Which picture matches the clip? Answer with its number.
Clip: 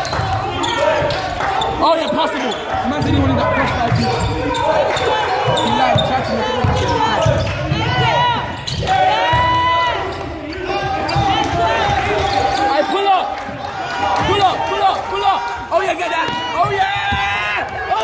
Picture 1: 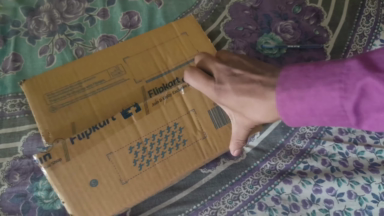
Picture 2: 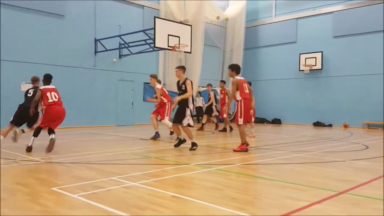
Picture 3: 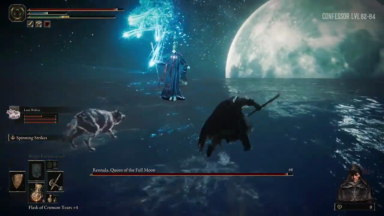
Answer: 2